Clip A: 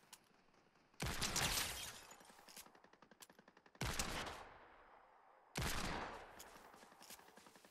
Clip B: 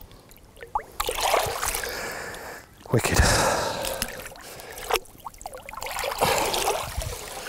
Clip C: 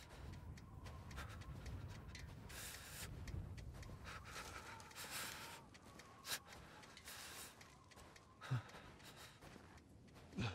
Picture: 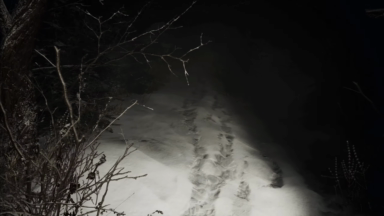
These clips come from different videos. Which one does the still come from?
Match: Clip C